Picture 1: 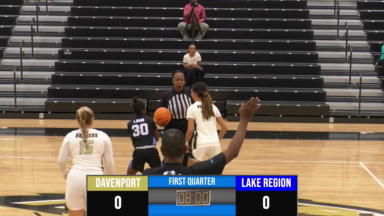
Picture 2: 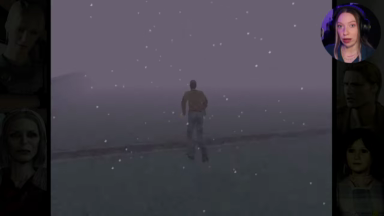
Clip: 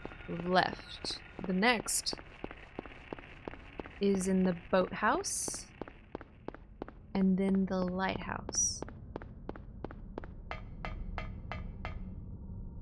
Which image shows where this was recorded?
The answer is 2